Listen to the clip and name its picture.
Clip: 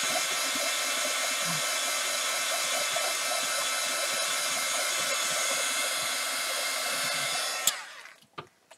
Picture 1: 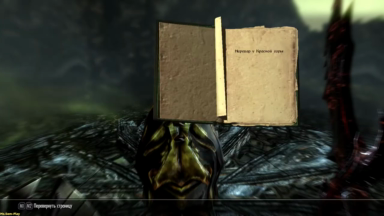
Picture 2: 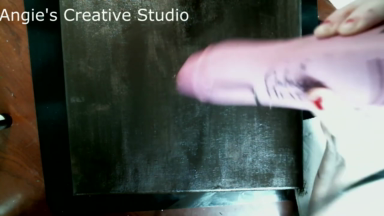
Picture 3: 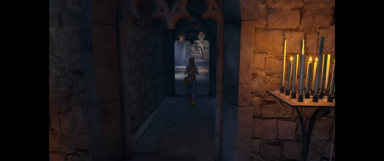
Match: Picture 2